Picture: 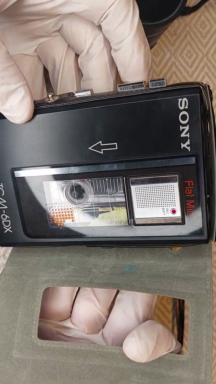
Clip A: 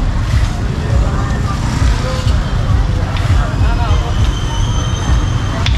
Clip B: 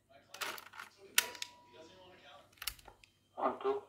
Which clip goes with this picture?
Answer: B